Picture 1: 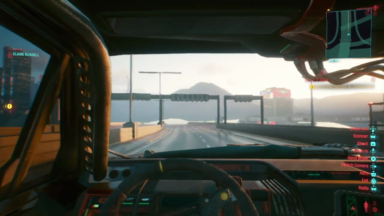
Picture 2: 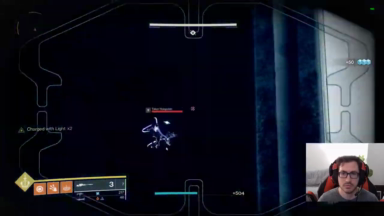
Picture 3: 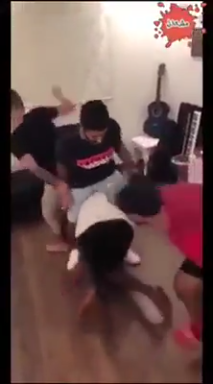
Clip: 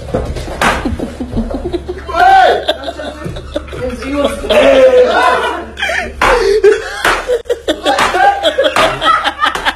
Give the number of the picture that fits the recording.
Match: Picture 3